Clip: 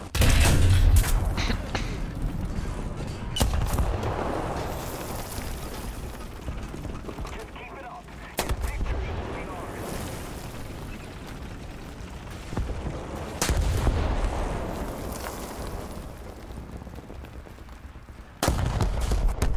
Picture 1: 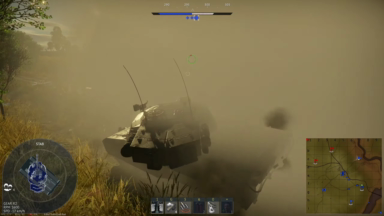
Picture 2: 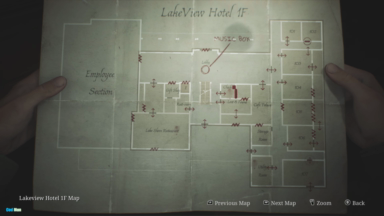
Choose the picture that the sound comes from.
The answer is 1